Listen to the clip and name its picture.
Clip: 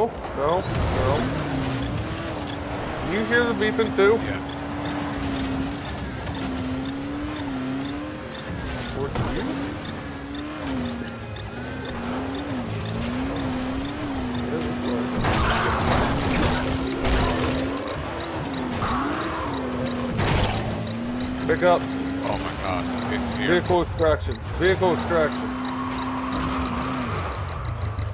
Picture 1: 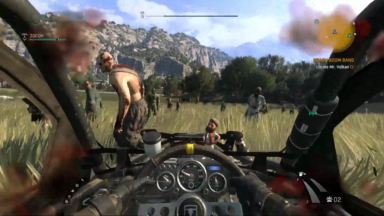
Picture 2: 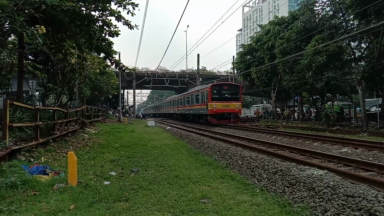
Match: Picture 1